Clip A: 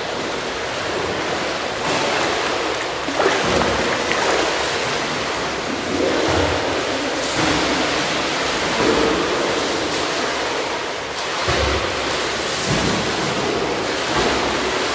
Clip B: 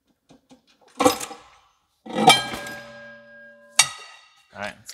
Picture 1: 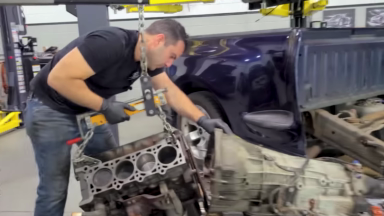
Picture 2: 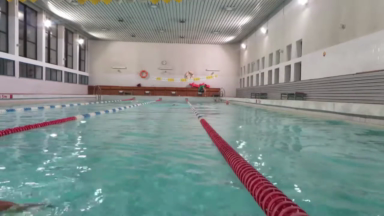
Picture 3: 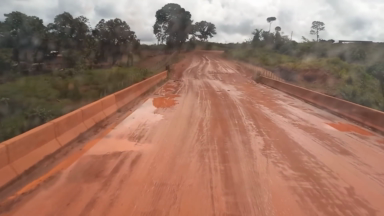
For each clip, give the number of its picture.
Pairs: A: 2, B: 1